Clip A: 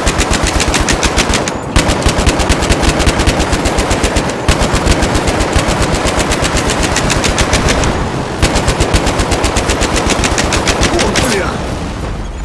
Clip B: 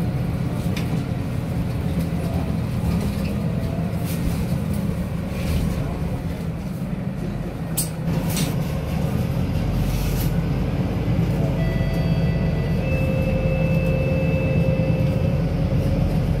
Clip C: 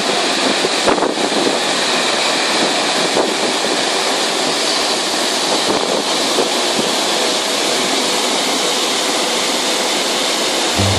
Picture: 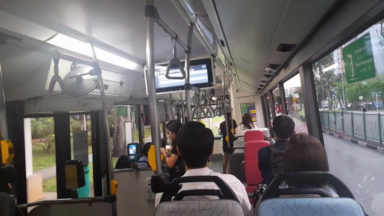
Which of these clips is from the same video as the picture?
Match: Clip B